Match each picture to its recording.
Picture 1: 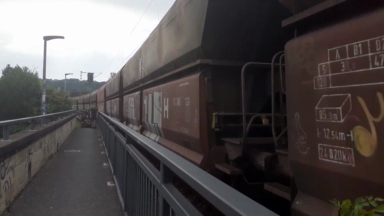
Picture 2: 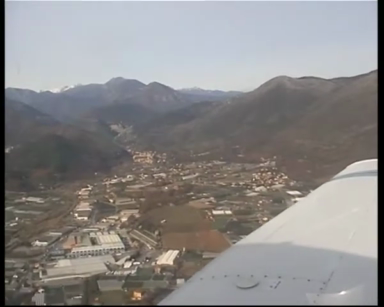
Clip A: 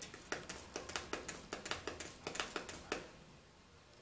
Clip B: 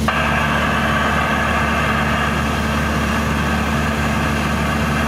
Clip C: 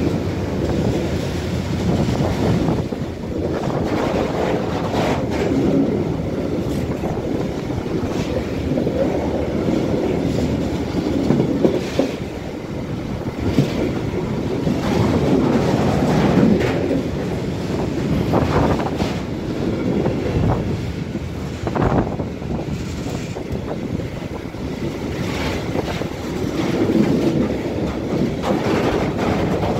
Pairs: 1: C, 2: B